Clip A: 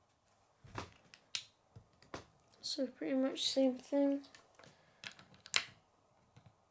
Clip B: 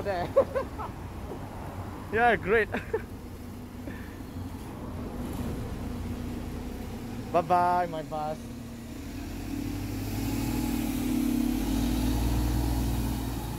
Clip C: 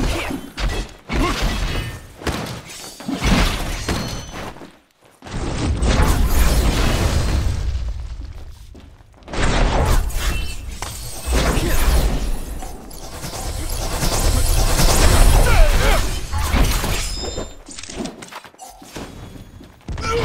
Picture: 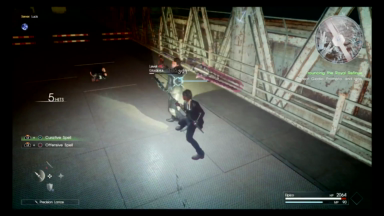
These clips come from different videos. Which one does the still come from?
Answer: C